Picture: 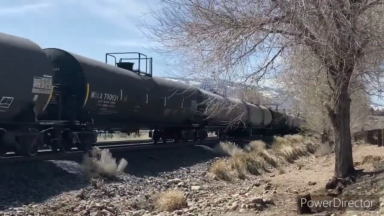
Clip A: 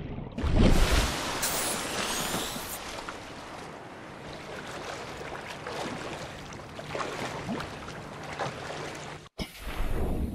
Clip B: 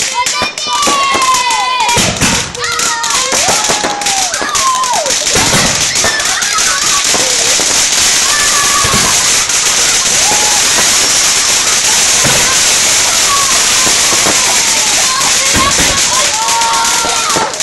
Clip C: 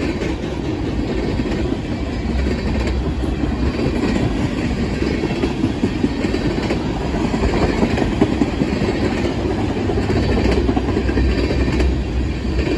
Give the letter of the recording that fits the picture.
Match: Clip C